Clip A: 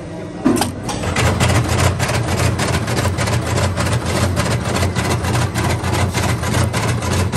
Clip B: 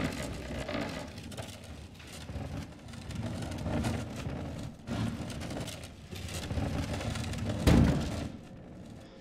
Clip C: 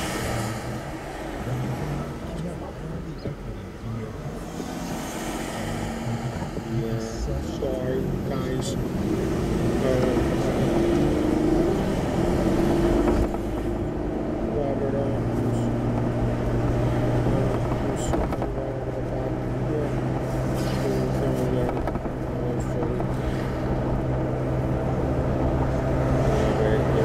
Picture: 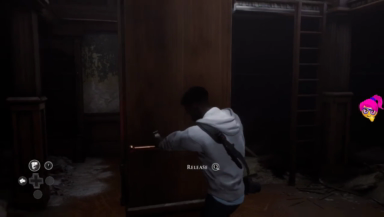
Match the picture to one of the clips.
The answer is B